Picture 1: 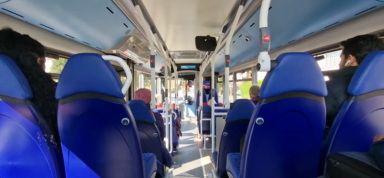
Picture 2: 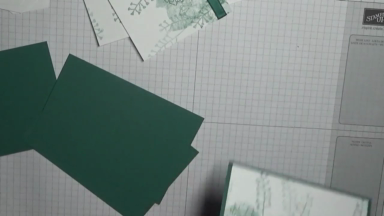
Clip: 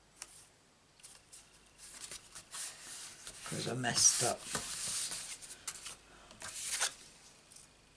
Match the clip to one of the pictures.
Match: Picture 2